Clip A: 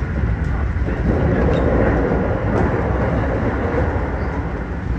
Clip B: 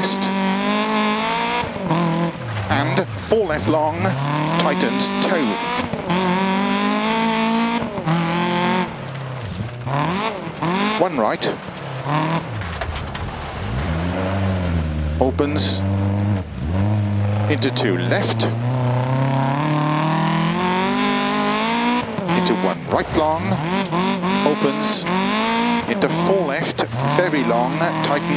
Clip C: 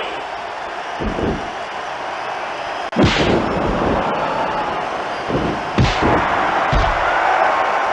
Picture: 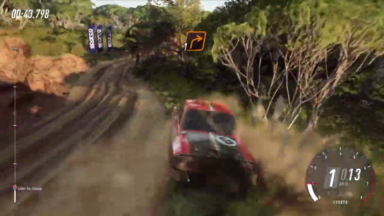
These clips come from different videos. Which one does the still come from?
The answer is B